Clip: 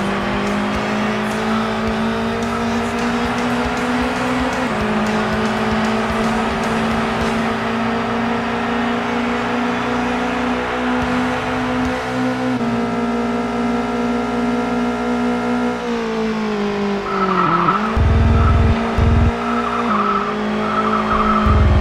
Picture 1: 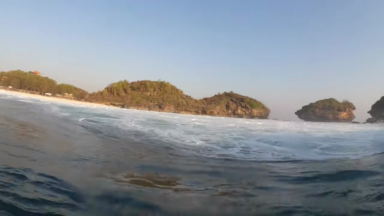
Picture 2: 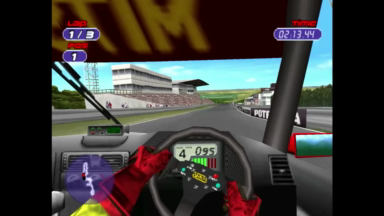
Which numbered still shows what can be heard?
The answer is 2